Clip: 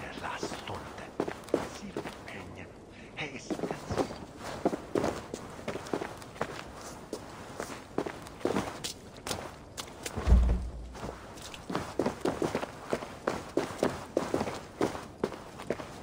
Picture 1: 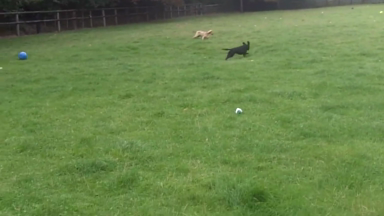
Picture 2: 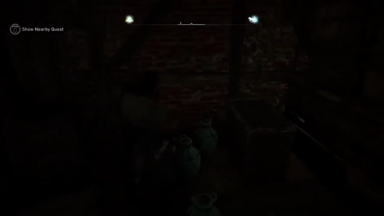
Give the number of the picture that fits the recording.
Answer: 2